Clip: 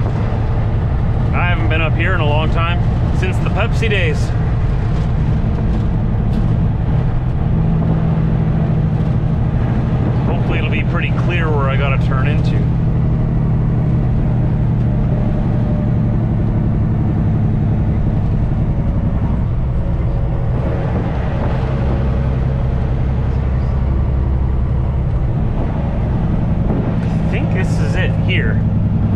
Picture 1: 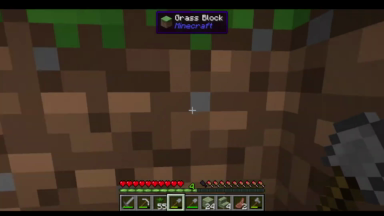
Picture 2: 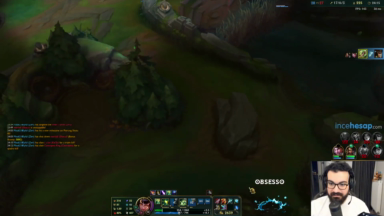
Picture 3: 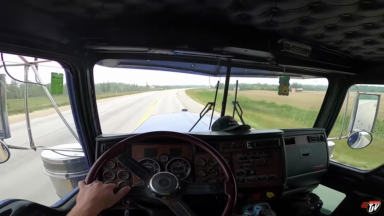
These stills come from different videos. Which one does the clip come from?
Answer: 3